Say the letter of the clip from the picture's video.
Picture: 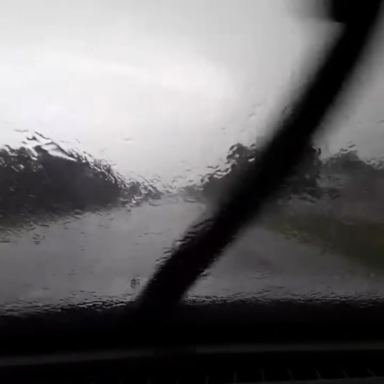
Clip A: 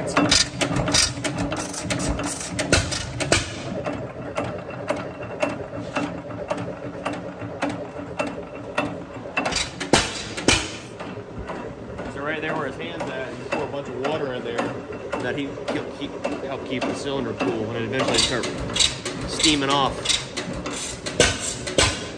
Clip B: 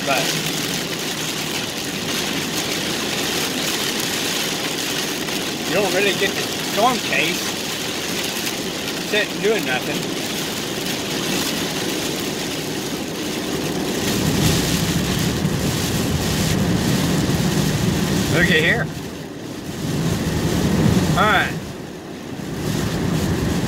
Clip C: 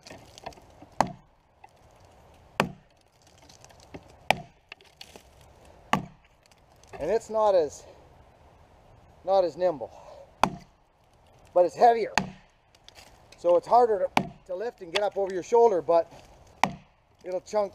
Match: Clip B